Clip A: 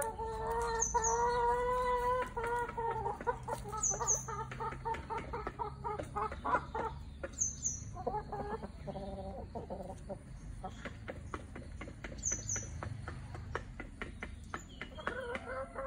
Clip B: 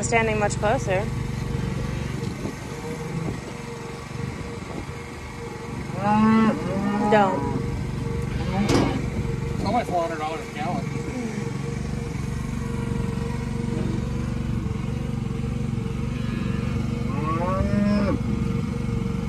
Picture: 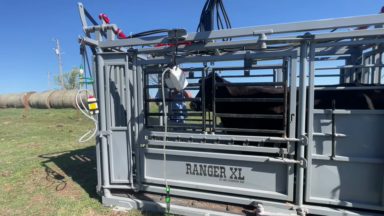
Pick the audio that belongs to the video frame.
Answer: B